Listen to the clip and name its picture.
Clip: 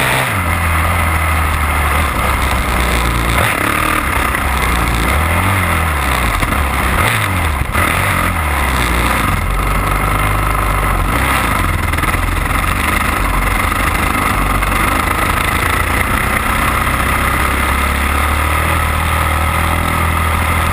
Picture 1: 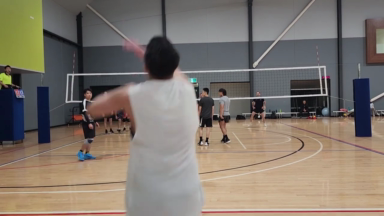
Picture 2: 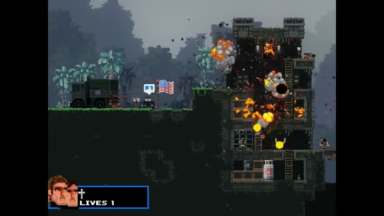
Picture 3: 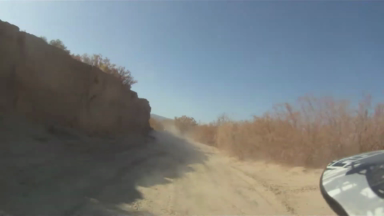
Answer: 3